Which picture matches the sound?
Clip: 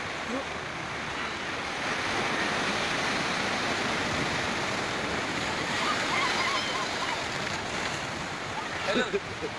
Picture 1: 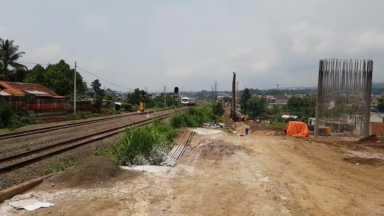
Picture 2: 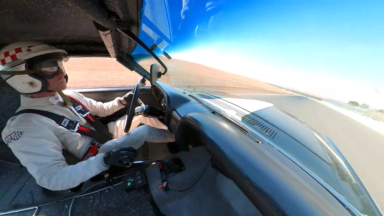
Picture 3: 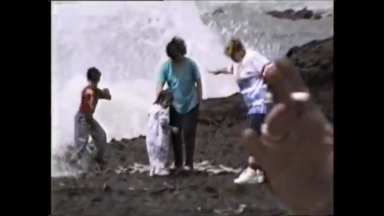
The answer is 3